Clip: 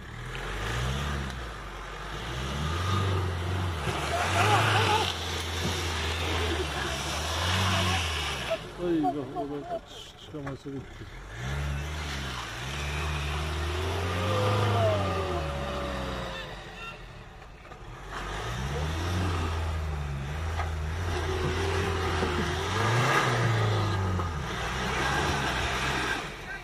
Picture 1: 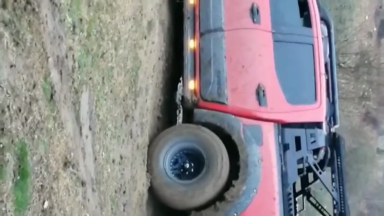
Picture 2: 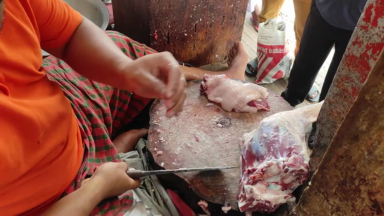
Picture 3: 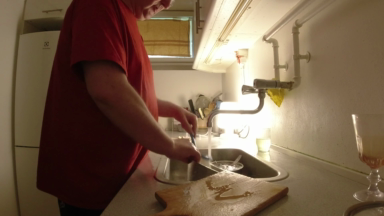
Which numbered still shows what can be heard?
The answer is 1